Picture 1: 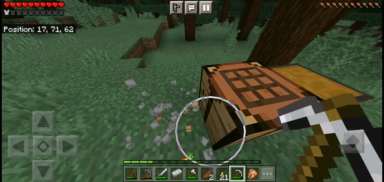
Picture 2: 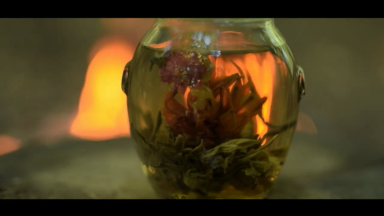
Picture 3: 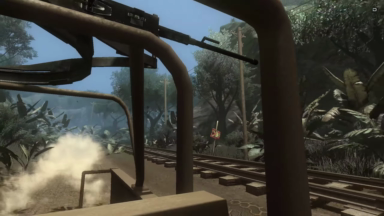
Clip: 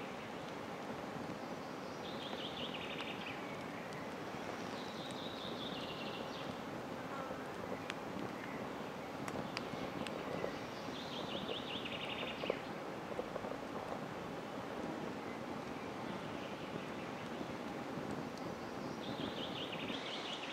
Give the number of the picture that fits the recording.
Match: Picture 2